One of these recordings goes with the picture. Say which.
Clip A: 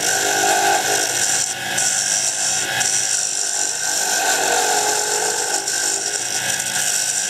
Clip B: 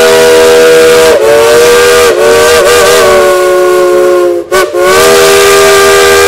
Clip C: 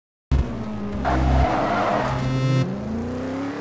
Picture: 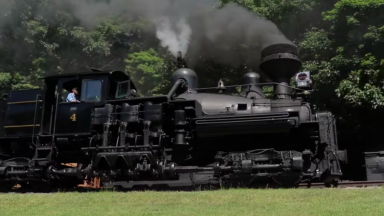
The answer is B